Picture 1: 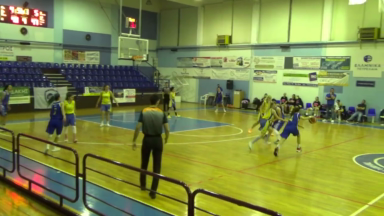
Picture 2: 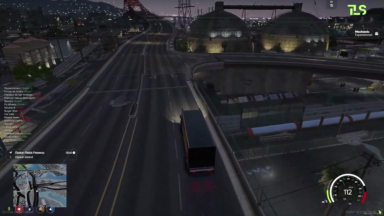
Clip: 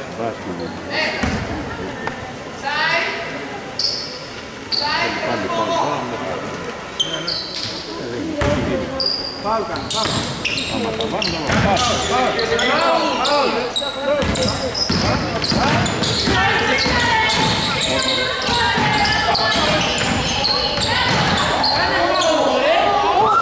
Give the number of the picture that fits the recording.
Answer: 1